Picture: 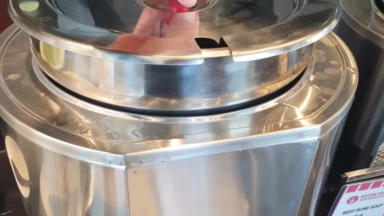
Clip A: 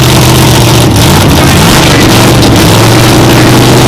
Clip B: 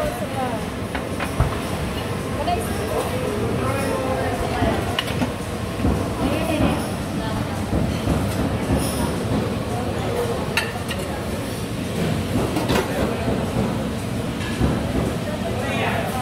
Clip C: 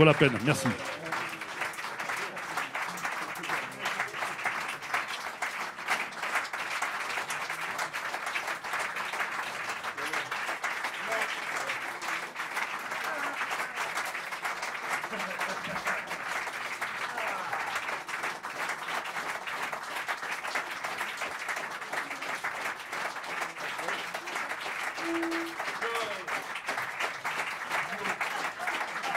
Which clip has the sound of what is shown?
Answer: B